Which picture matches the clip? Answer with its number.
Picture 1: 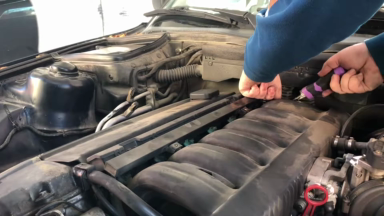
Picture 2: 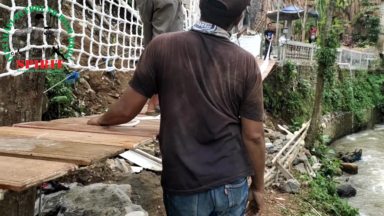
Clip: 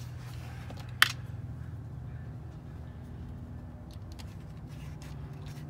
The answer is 1